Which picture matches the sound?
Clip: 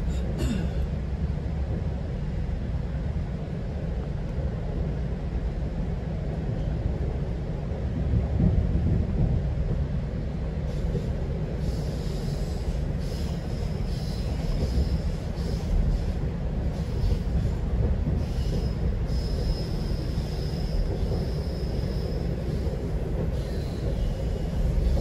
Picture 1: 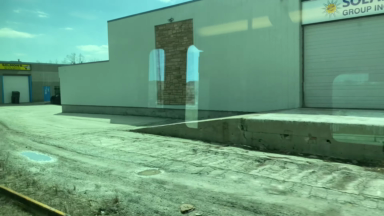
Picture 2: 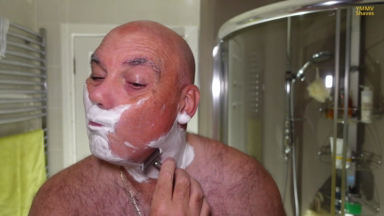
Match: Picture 1